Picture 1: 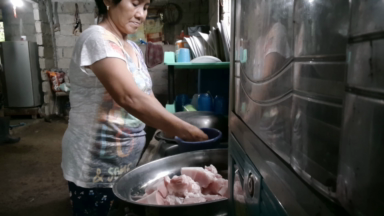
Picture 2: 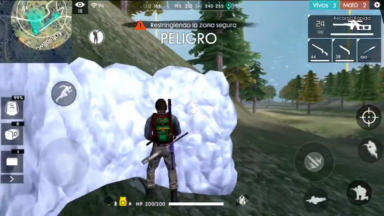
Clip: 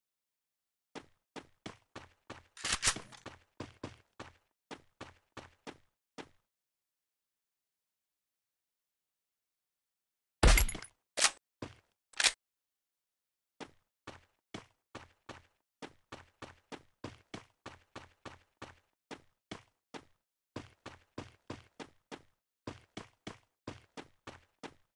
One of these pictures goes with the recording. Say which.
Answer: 2